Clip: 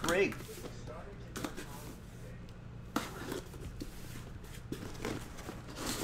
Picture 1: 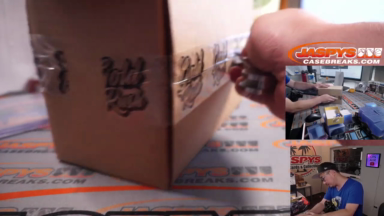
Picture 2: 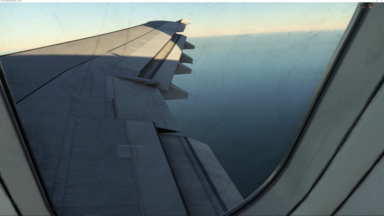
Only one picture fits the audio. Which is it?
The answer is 1